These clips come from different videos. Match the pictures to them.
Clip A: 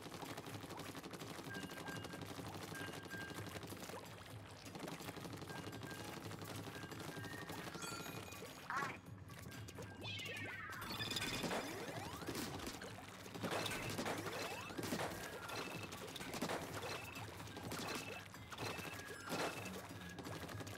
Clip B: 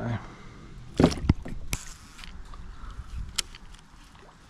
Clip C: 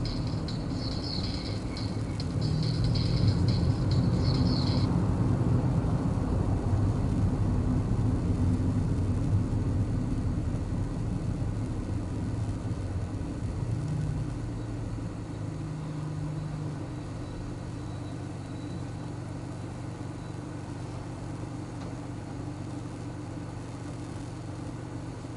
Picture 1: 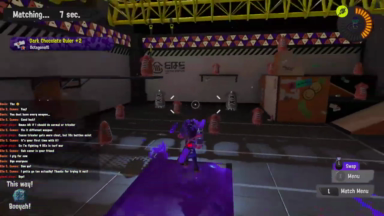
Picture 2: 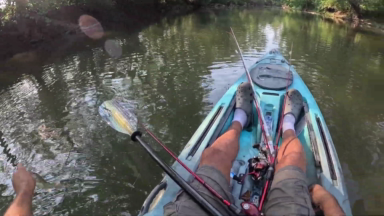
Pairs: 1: A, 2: B